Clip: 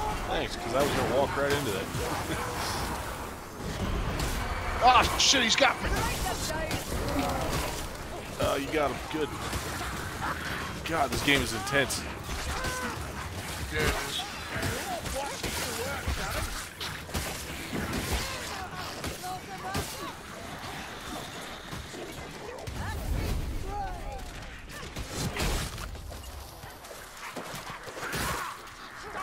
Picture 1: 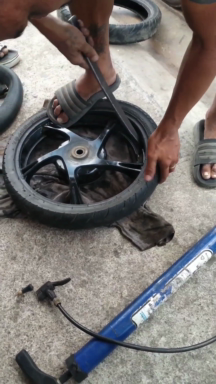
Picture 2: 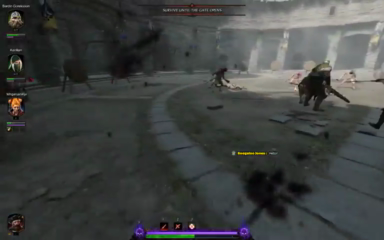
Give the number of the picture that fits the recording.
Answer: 2